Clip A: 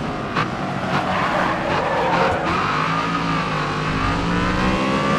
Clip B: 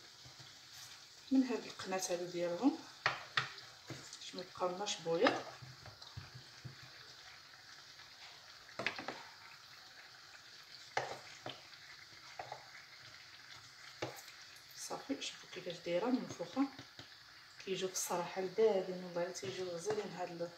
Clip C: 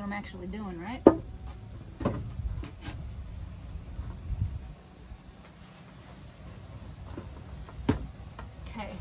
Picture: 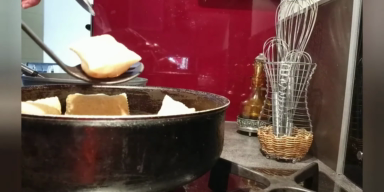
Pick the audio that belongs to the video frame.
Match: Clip B